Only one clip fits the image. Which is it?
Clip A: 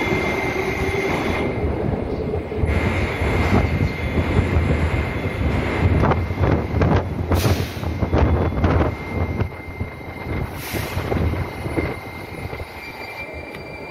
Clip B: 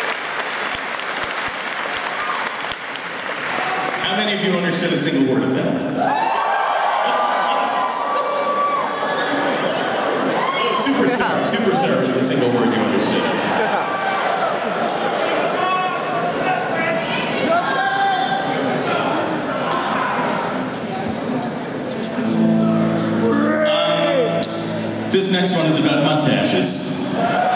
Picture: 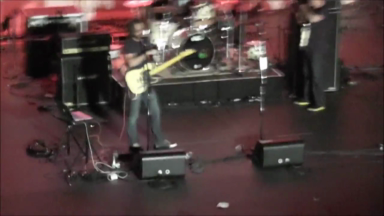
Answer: B